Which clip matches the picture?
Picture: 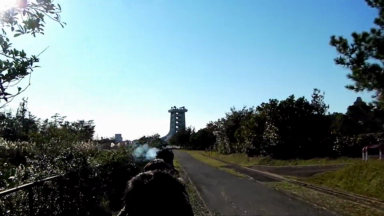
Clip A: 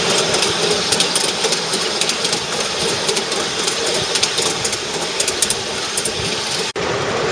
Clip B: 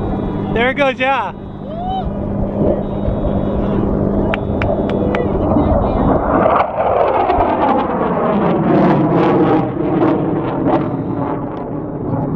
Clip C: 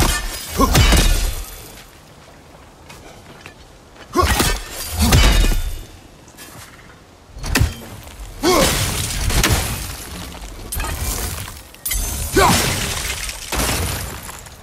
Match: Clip A